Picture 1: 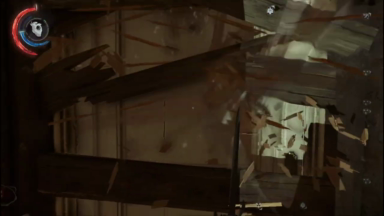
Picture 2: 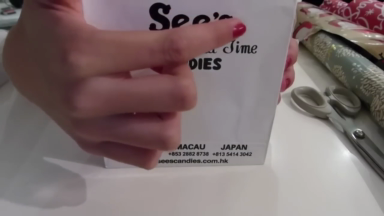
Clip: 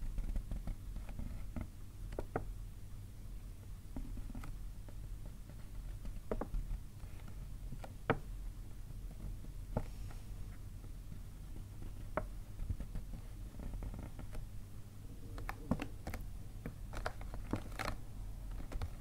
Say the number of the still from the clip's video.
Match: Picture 2